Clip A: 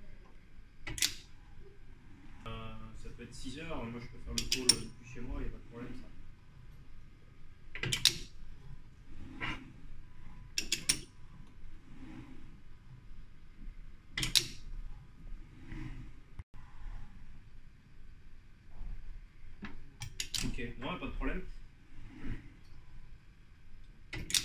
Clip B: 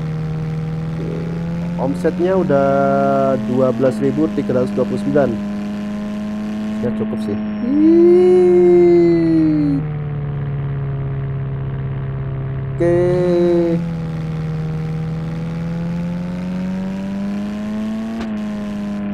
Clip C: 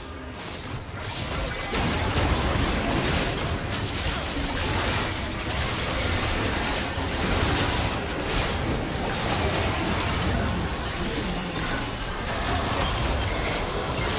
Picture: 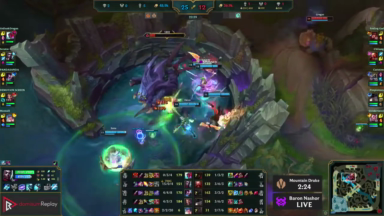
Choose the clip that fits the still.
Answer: C